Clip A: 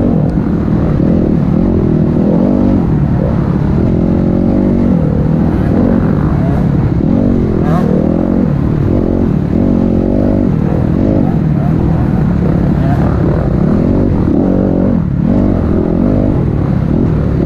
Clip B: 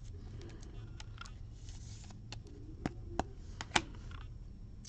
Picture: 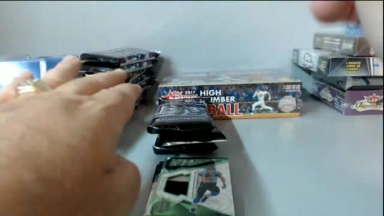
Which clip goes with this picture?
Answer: B